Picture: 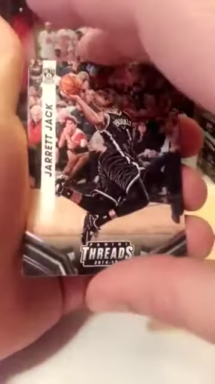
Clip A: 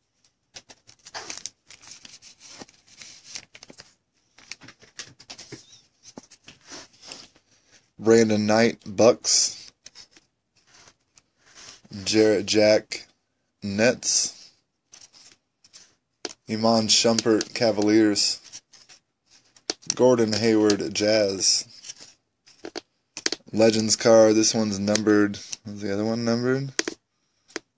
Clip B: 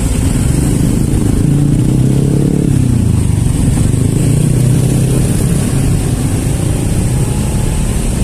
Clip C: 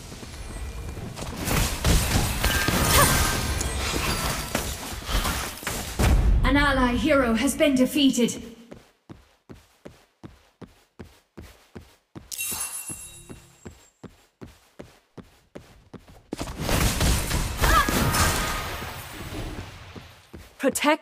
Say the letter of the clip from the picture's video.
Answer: A